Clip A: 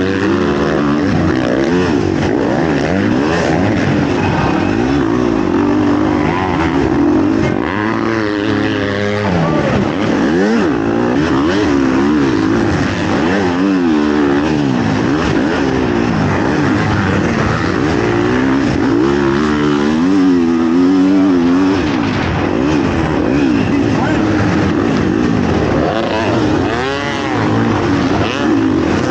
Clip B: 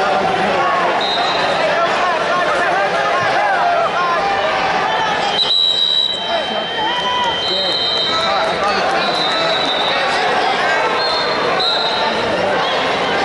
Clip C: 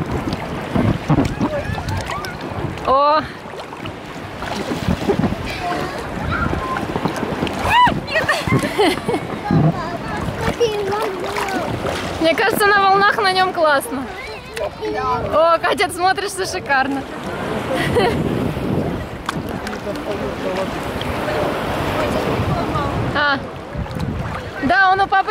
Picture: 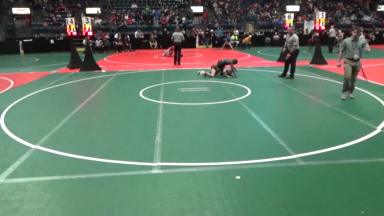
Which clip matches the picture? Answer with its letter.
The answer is B